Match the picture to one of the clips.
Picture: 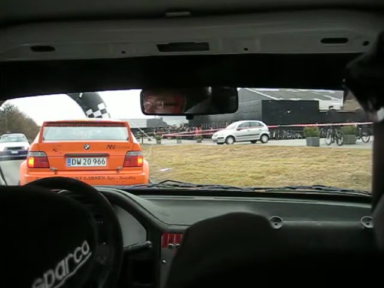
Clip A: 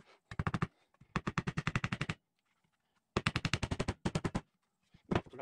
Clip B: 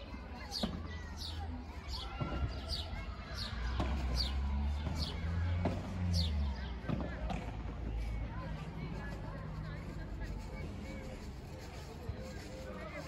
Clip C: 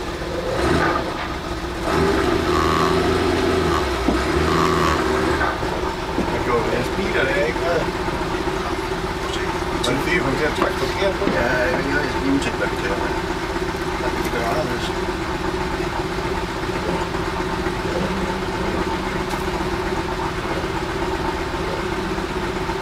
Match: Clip C